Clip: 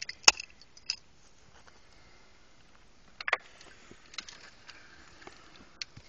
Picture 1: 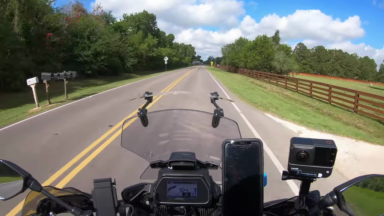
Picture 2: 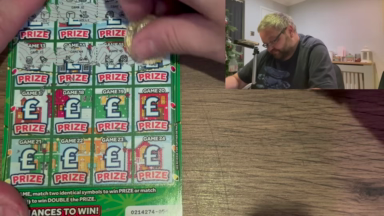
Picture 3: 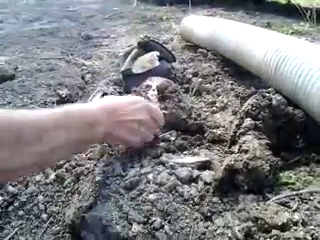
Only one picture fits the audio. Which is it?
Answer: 3